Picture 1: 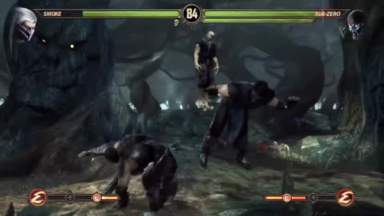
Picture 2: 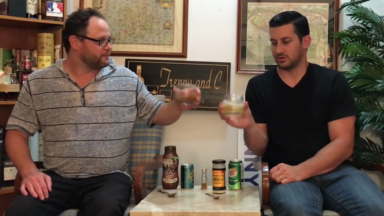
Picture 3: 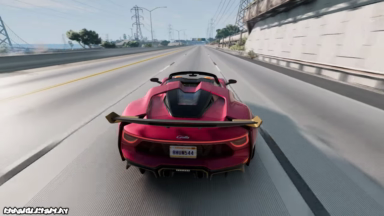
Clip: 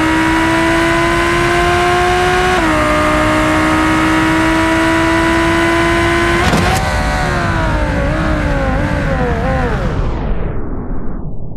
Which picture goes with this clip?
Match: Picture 3